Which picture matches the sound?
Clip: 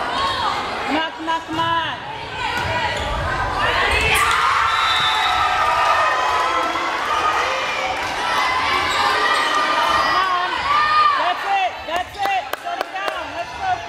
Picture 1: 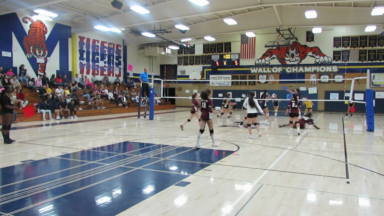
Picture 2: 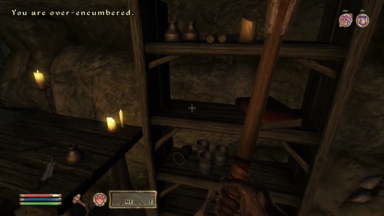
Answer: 1